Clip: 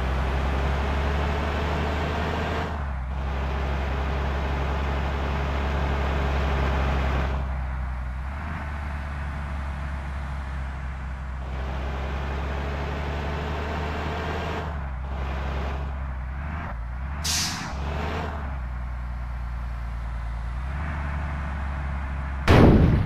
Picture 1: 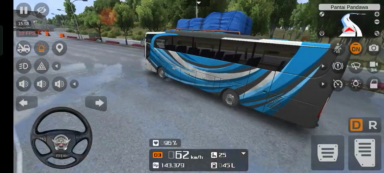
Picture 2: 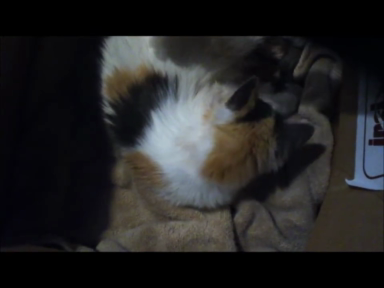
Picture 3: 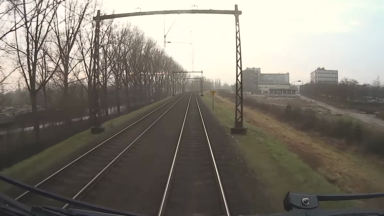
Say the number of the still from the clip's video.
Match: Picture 1